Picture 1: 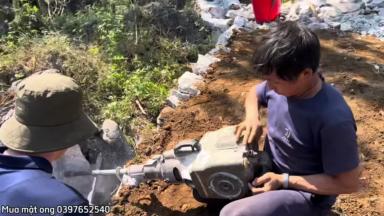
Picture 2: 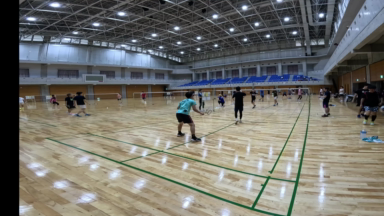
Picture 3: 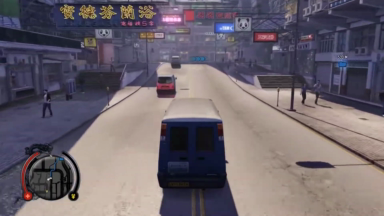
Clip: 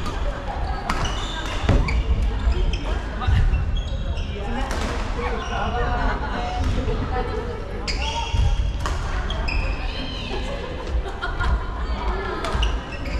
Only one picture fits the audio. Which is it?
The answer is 2